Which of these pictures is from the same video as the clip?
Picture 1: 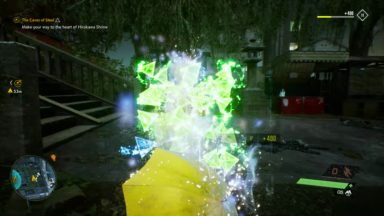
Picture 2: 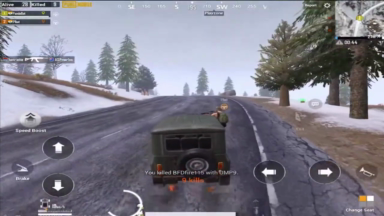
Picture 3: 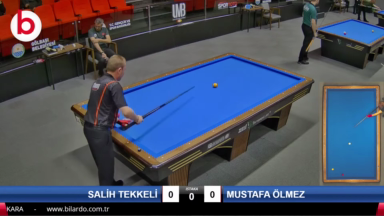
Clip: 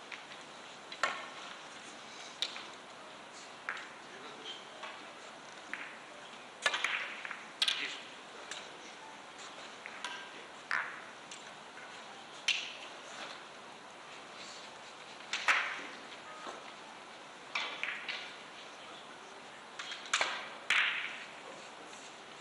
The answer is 3